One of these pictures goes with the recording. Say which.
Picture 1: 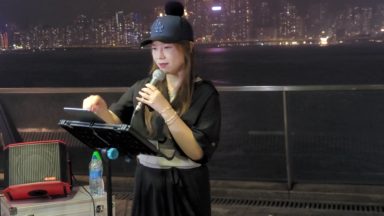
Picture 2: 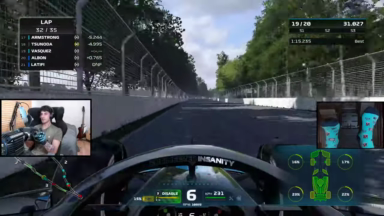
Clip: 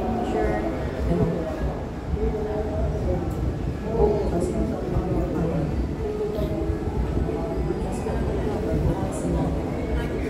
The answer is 1